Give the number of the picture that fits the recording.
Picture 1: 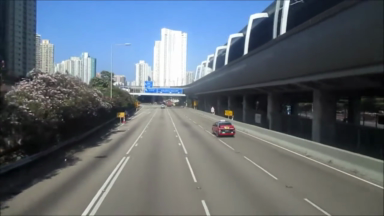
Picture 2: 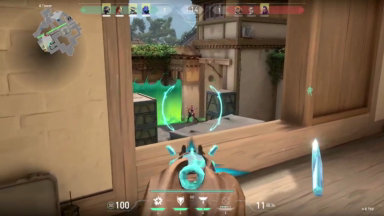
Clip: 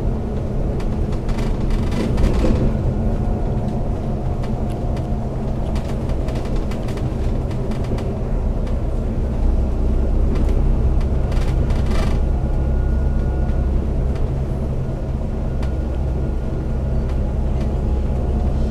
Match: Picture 1